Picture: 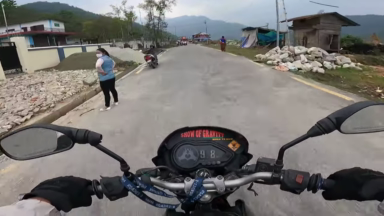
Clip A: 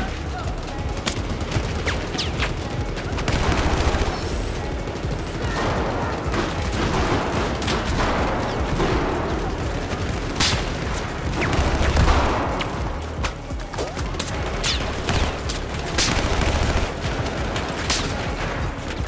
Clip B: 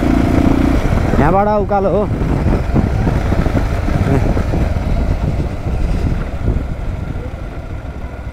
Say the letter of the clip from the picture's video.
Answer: B